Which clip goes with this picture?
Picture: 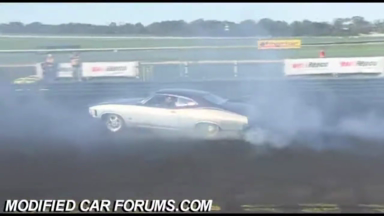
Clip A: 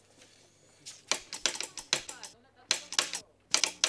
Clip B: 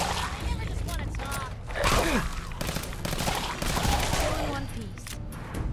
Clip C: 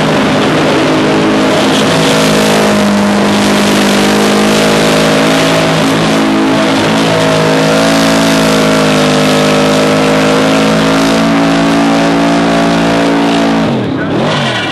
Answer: C